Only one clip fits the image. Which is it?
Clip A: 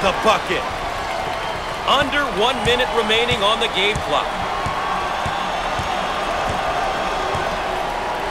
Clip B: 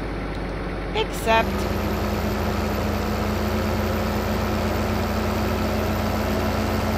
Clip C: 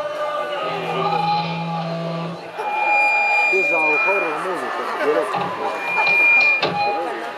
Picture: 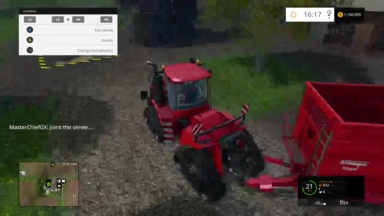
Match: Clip B